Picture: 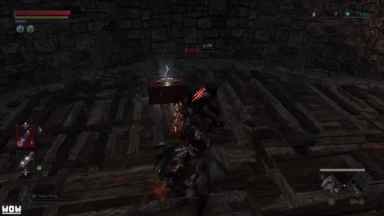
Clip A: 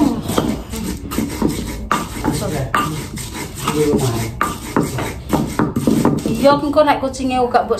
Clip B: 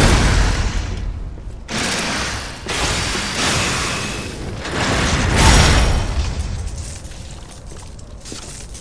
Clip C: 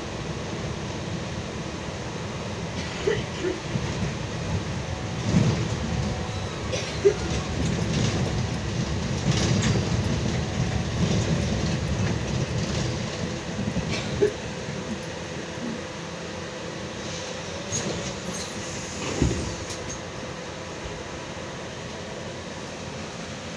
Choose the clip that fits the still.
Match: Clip B